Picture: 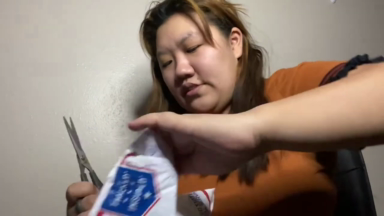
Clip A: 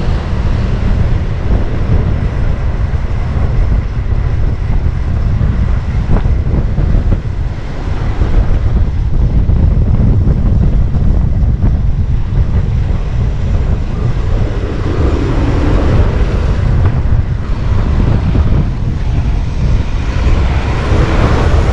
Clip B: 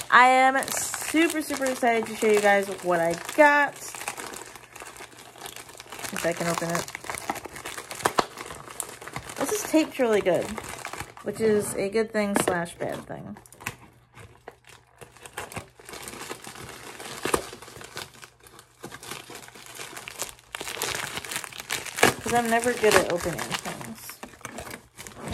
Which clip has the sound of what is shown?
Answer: B